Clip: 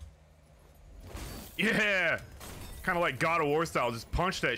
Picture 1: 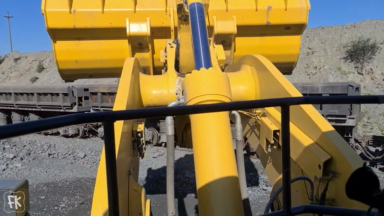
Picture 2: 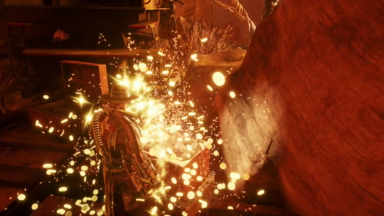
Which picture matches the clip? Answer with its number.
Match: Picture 2